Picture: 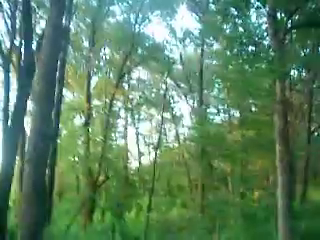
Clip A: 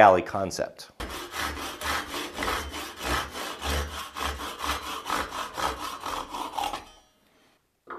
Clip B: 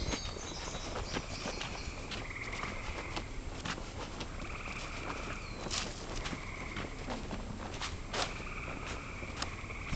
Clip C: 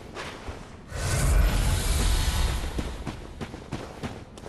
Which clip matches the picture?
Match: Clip B